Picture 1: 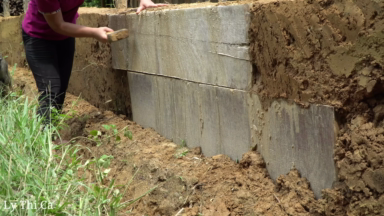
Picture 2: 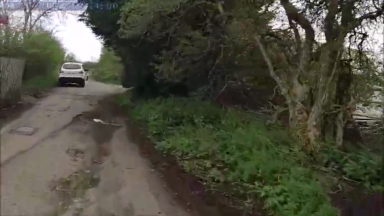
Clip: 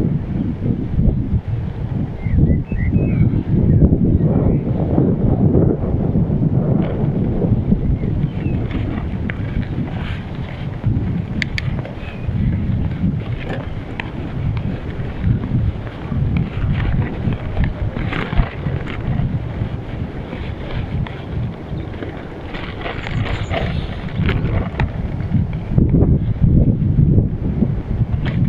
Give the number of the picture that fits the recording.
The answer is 2